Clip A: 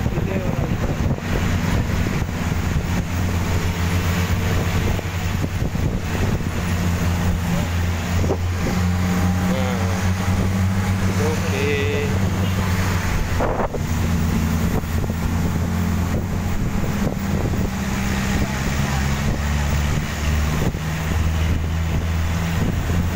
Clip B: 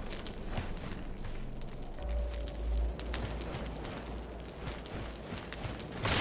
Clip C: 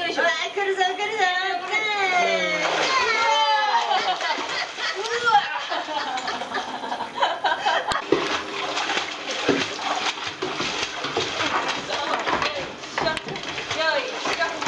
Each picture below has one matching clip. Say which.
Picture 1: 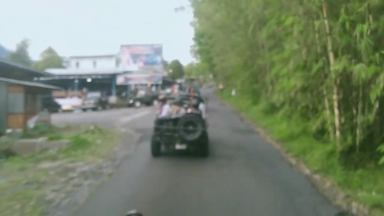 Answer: A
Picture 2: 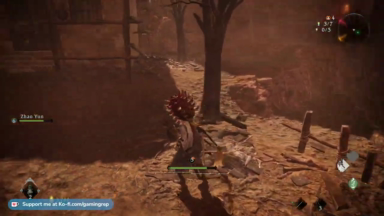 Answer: B